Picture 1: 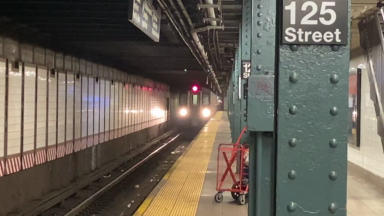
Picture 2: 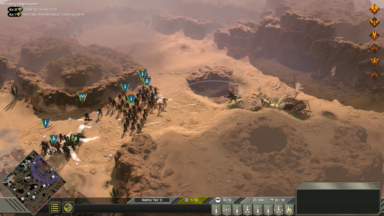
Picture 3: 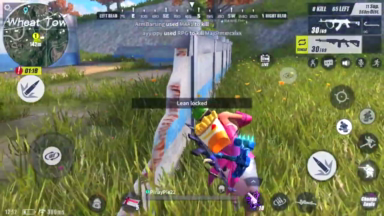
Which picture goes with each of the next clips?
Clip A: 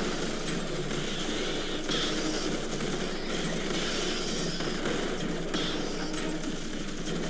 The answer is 2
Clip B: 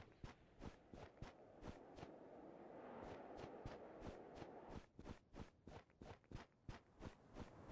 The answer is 3